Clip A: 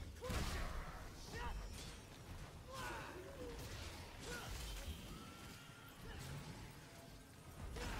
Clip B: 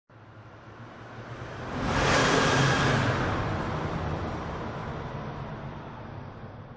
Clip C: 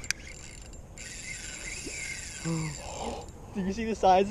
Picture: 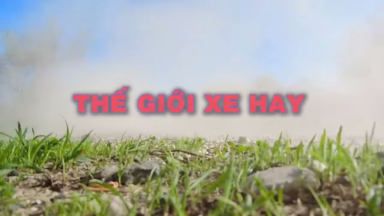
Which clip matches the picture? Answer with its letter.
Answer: B